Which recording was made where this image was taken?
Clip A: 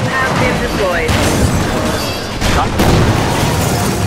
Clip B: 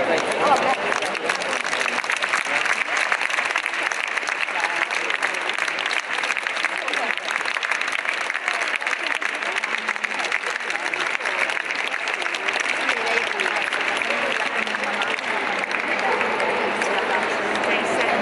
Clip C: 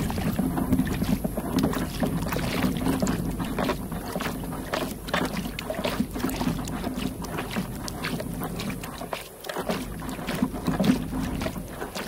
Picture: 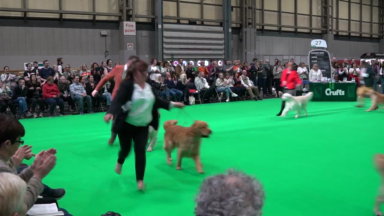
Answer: B